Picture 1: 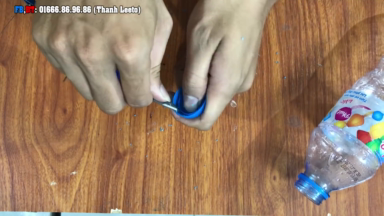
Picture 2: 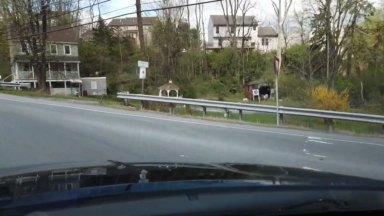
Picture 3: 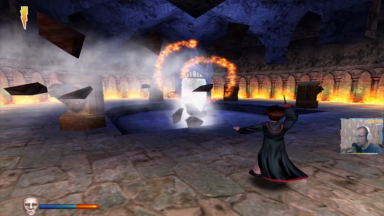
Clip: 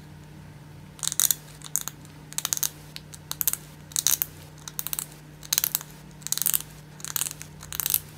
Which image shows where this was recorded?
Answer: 1